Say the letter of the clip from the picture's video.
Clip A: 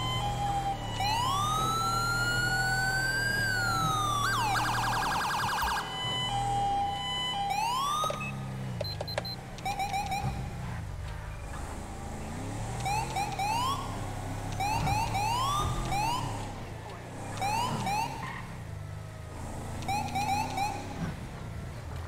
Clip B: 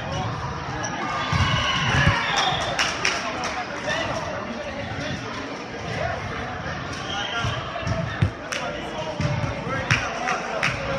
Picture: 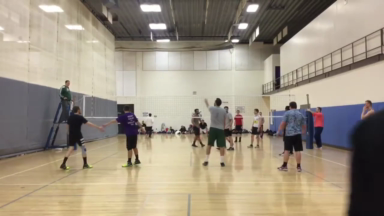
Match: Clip B